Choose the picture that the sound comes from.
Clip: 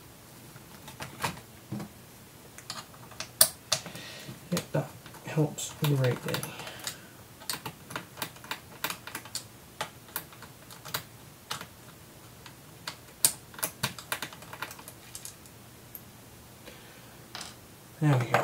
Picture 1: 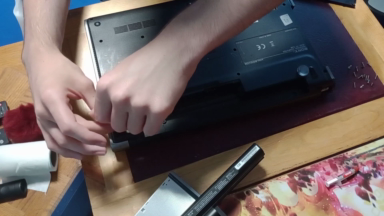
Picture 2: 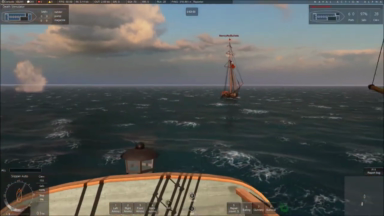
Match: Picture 1